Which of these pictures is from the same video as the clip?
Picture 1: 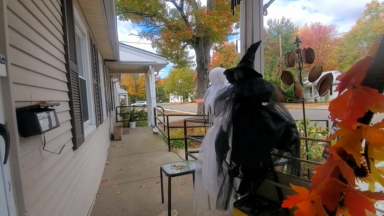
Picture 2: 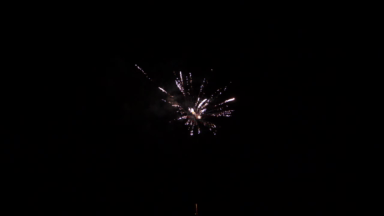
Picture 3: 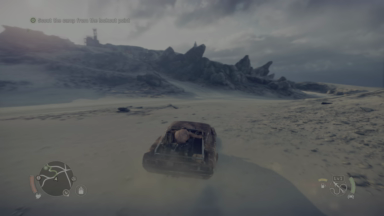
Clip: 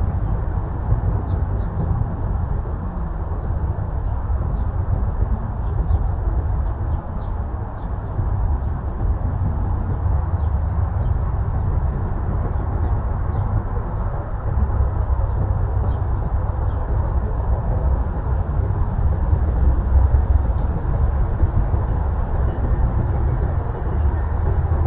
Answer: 1